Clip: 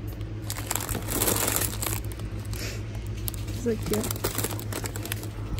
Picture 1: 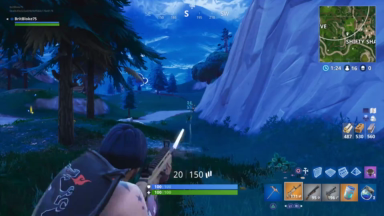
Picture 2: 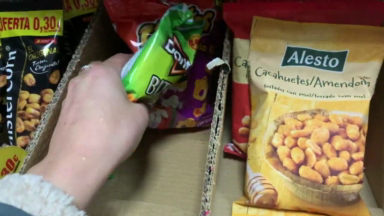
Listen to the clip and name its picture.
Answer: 2